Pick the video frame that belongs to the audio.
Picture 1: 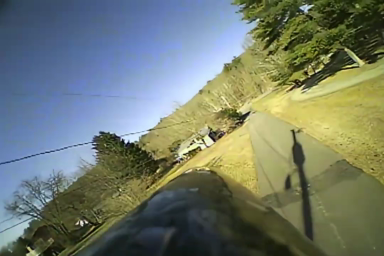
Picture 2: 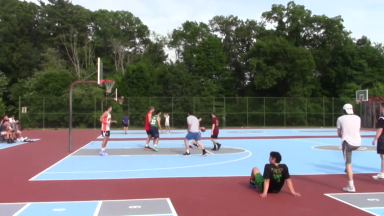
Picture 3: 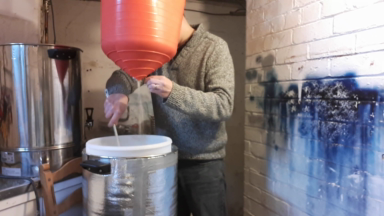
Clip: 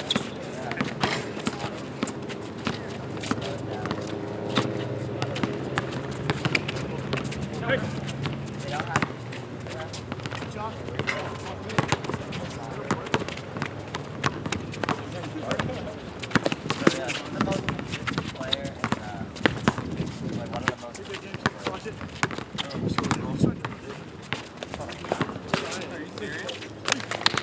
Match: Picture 2